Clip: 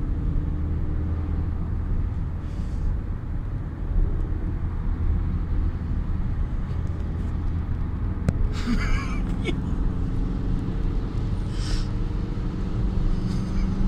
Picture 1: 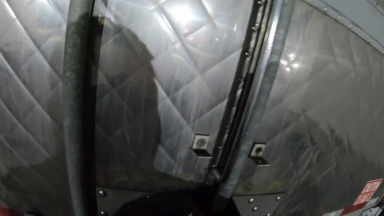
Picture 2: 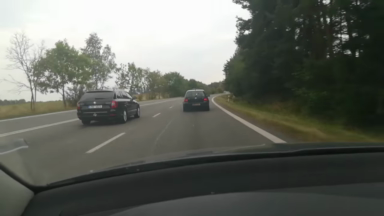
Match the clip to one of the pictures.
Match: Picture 2